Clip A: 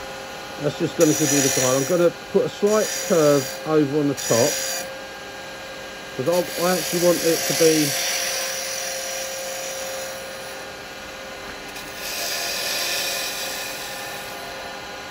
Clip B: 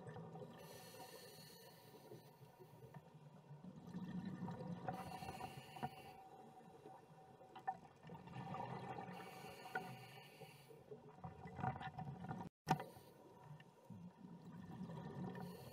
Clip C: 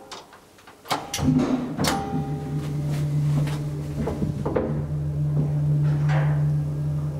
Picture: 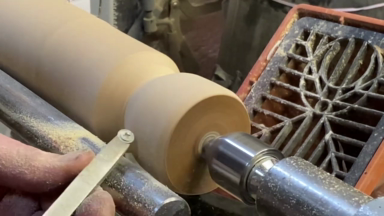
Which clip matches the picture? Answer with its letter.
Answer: A